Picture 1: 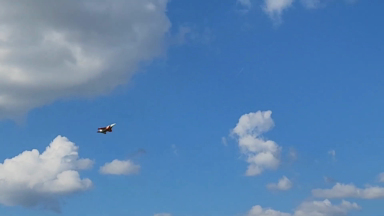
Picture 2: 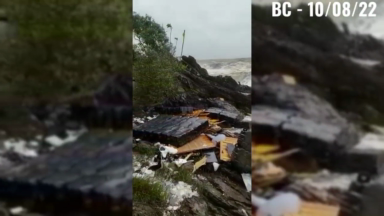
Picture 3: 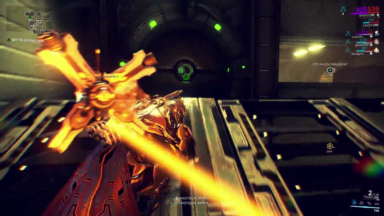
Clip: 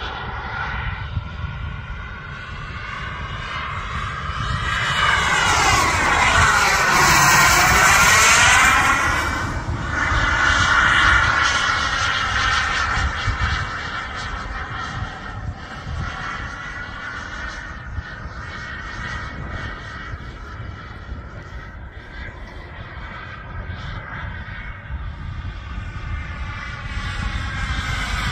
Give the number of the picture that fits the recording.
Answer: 1